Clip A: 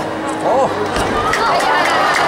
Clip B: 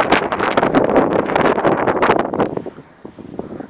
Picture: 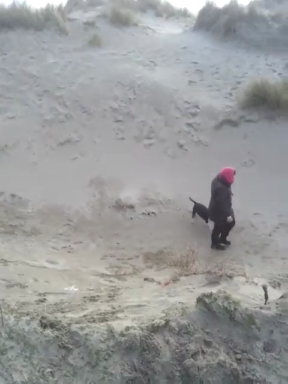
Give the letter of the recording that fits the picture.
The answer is B